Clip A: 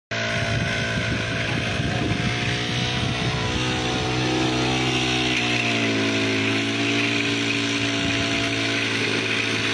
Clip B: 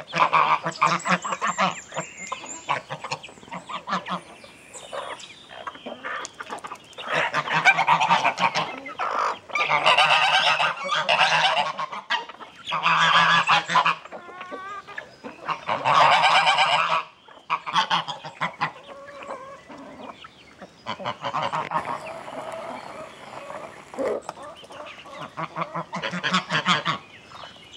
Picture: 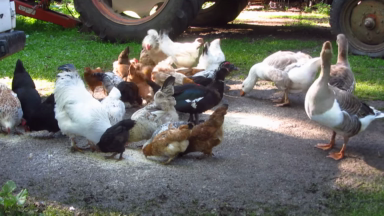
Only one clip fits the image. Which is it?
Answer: B